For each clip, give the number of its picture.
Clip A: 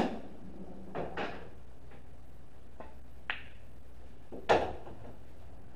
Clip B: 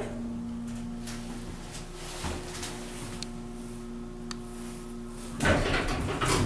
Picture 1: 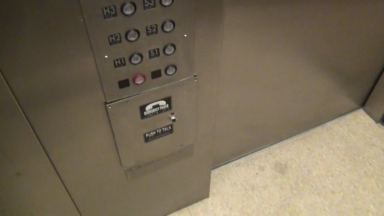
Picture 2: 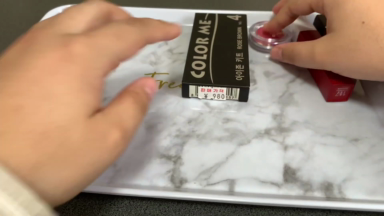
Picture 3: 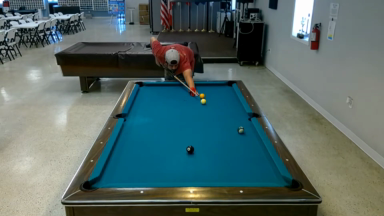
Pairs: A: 3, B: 1